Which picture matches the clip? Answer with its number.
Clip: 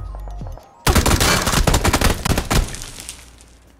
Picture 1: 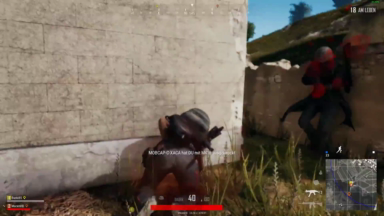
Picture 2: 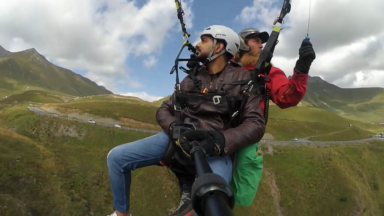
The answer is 1